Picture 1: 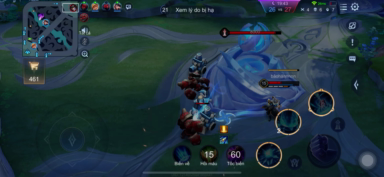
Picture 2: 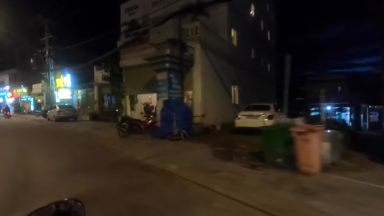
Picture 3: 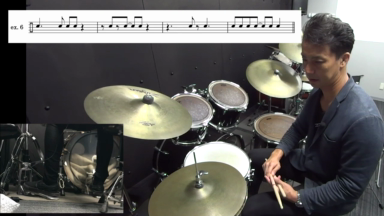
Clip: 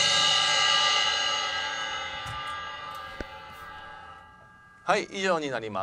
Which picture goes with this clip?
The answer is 3